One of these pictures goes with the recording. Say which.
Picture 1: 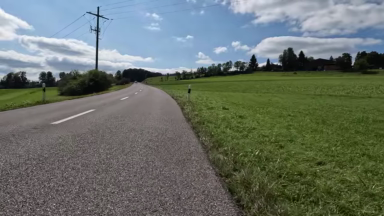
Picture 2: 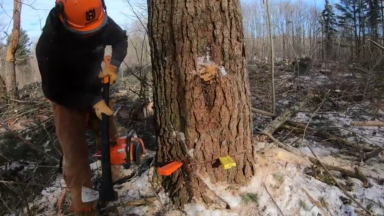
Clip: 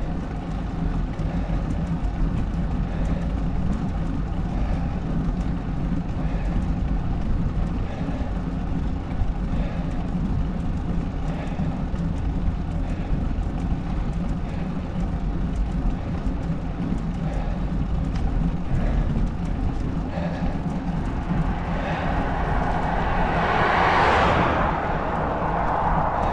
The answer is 1